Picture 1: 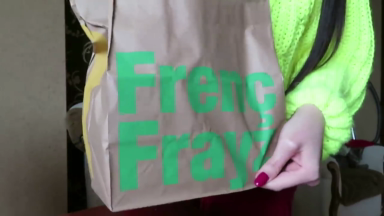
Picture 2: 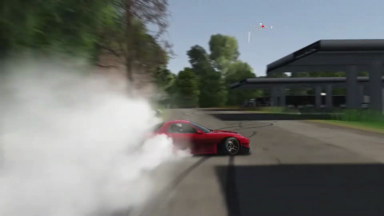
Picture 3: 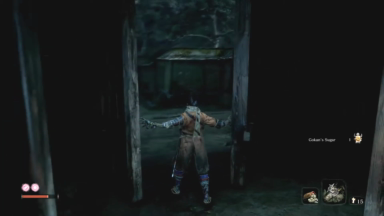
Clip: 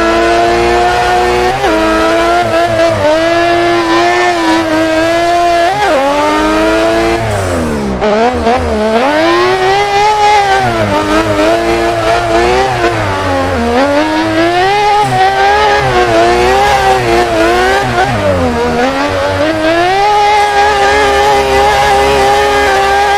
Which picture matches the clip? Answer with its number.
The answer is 2